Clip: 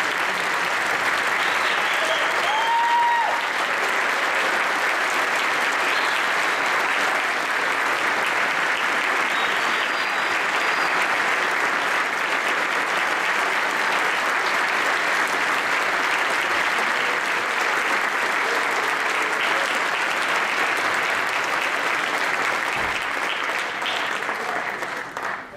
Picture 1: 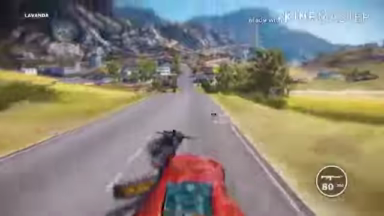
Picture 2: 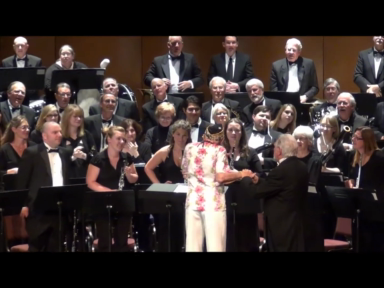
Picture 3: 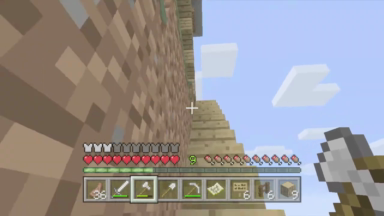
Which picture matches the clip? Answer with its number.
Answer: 2